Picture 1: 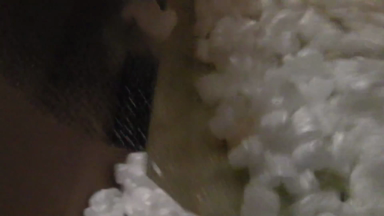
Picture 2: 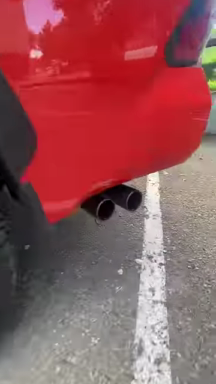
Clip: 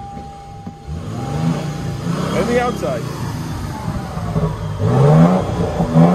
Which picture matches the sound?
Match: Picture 2